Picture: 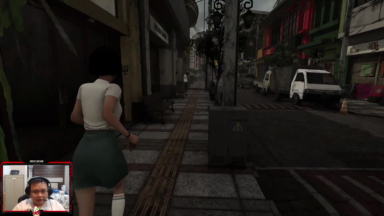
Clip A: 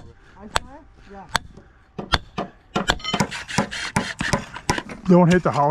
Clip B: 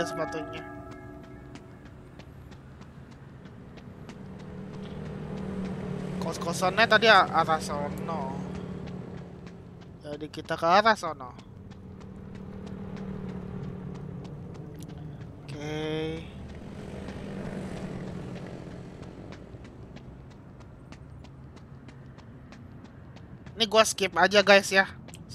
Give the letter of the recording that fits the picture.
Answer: B